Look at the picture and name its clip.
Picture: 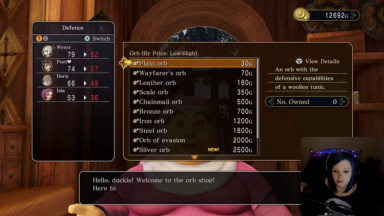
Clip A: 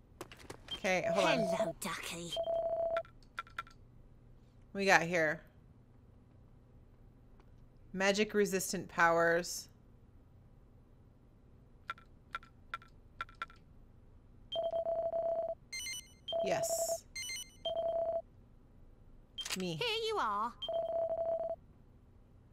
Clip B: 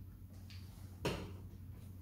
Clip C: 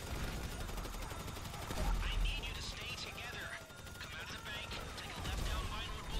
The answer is A